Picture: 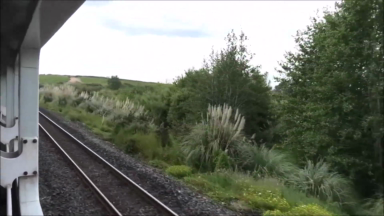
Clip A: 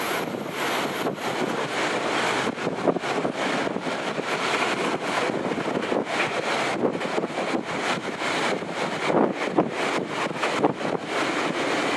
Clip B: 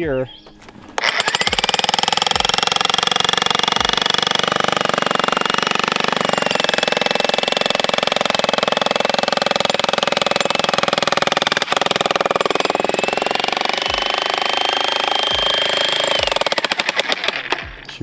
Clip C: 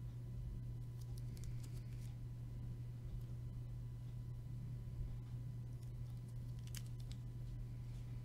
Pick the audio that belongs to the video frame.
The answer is A